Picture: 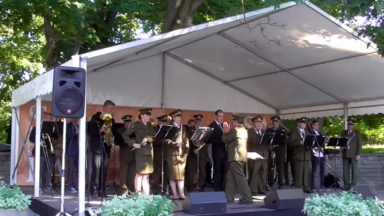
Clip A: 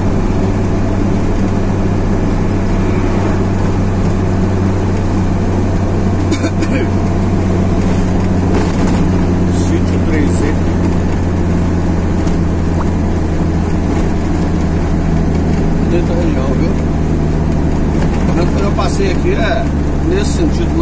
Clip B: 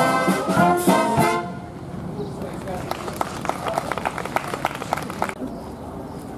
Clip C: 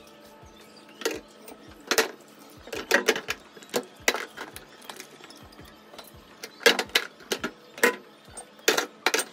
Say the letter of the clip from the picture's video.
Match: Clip B